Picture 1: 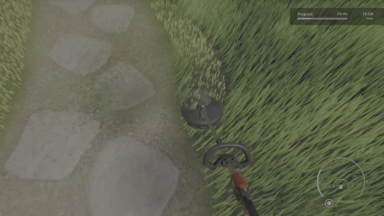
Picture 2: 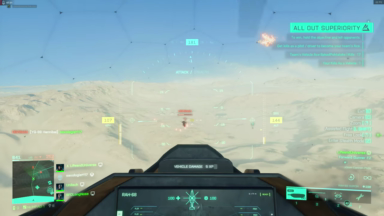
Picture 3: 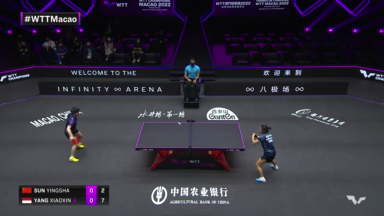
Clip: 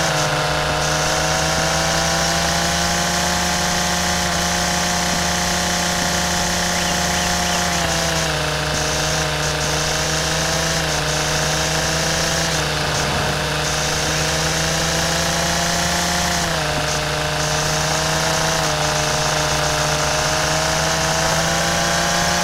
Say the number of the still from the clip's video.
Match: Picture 1